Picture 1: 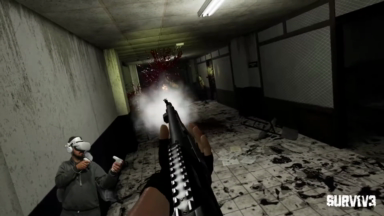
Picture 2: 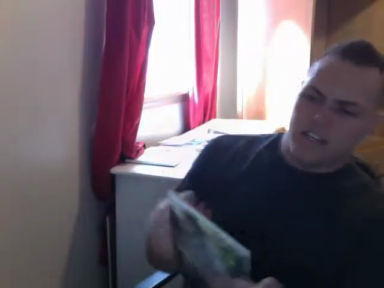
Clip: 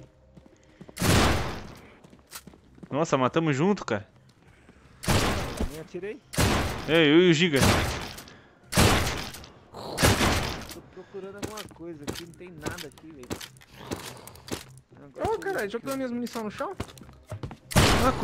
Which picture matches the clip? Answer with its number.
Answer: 1